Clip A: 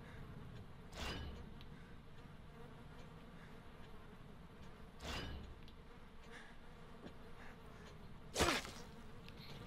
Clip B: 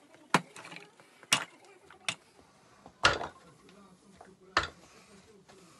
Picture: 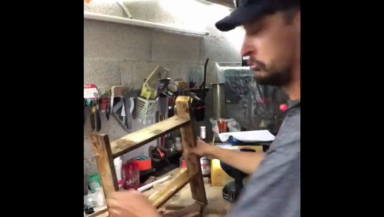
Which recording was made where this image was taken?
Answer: B